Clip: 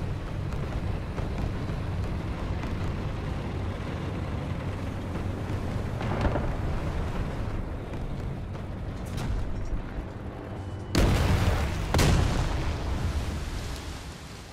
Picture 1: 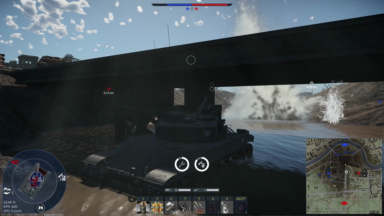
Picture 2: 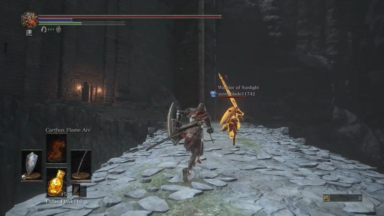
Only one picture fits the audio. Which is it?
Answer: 1